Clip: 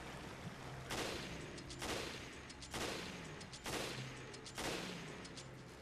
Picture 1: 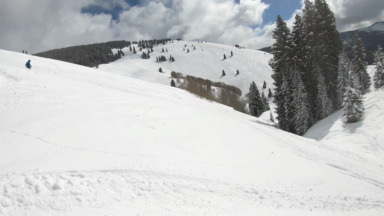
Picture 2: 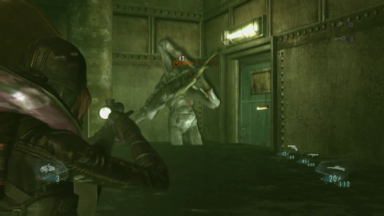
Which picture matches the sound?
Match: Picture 2